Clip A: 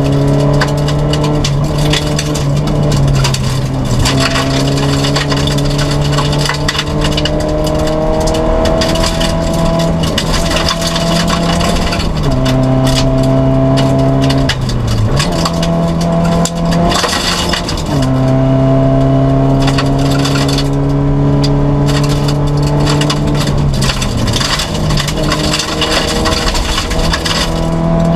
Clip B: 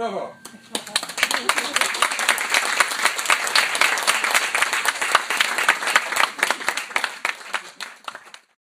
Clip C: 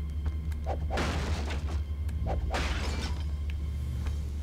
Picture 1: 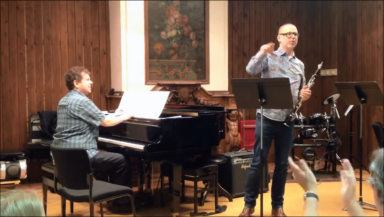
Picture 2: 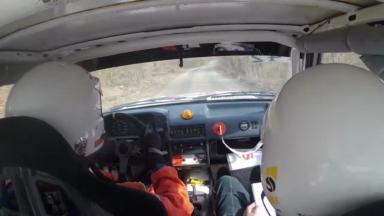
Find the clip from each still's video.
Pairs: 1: B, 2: A